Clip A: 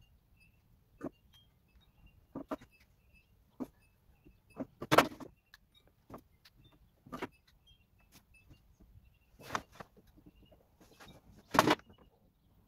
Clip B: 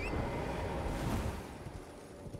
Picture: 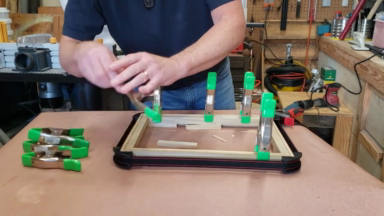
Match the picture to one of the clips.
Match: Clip A